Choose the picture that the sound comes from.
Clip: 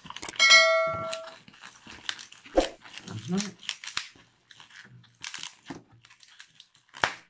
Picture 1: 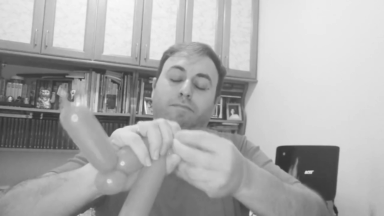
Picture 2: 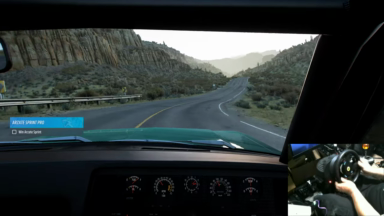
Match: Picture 1